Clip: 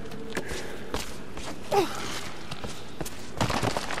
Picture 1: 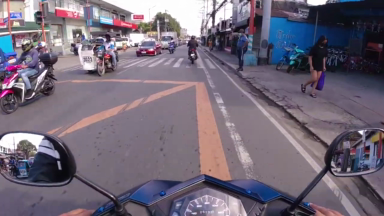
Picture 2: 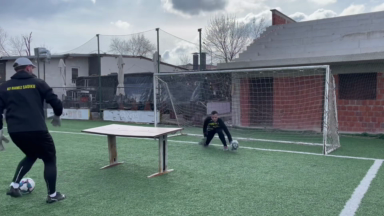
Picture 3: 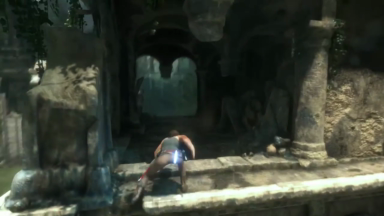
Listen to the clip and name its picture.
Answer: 3